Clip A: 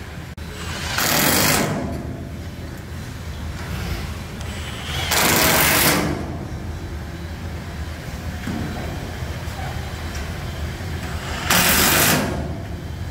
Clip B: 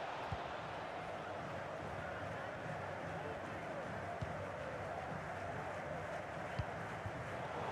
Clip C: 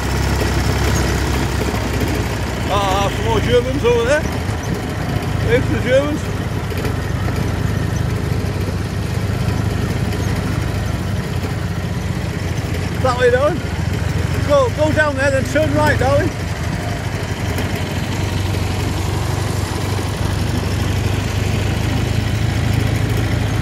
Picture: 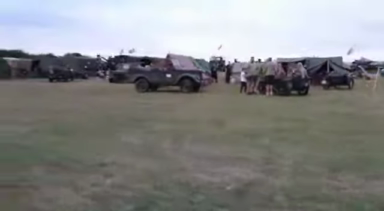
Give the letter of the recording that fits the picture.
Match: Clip C